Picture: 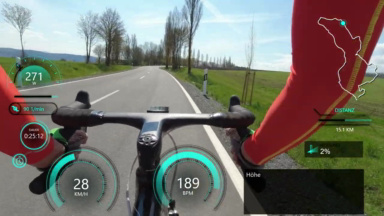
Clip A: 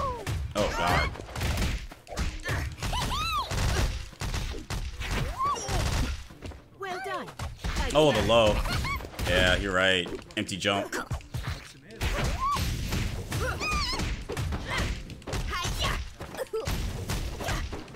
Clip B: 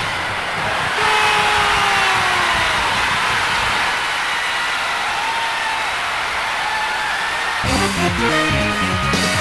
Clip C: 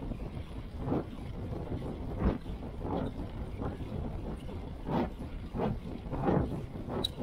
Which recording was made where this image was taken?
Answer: C